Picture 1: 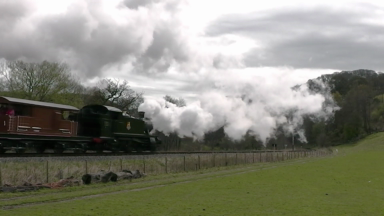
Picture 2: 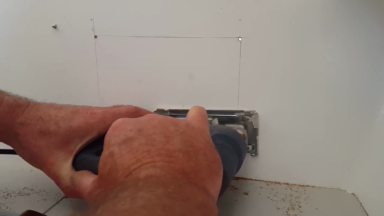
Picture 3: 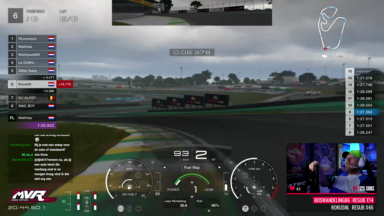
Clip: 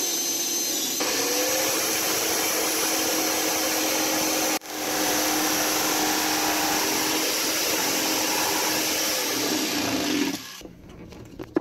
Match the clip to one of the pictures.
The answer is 2